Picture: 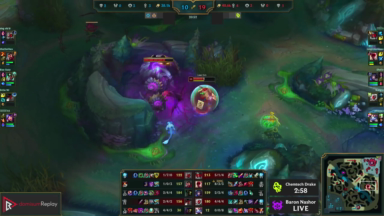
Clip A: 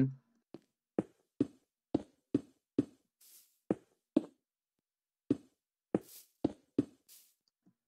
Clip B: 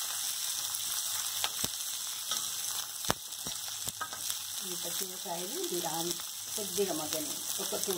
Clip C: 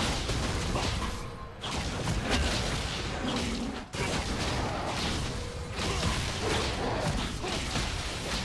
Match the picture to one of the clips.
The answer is C